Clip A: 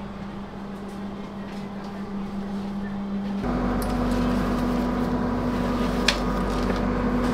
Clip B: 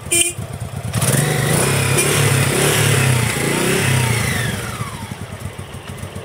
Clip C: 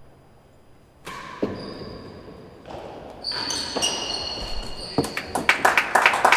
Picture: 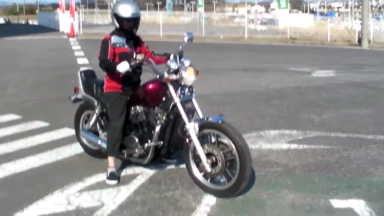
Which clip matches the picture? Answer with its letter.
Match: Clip B